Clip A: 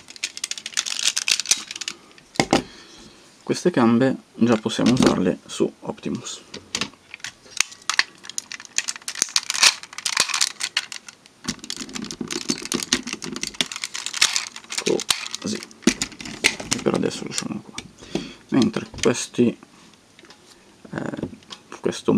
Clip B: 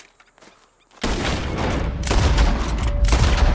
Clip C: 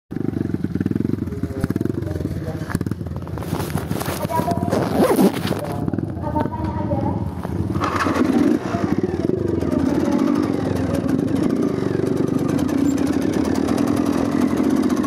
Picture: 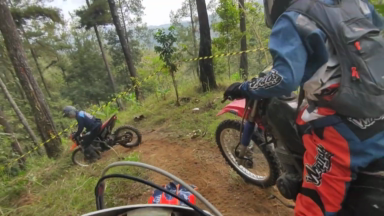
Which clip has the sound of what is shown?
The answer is C